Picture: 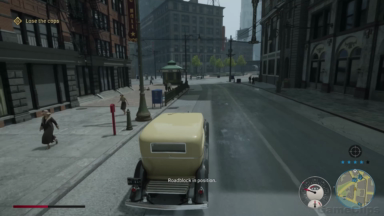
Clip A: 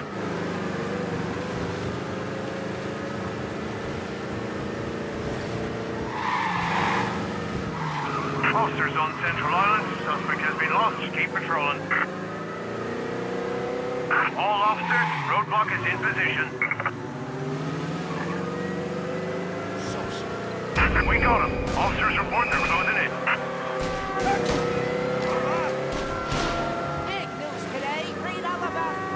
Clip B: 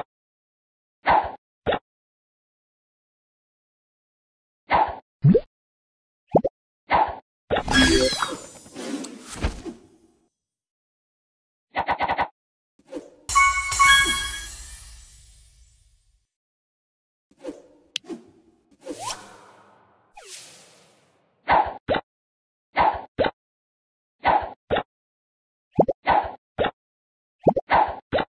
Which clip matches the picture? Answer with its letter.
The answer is A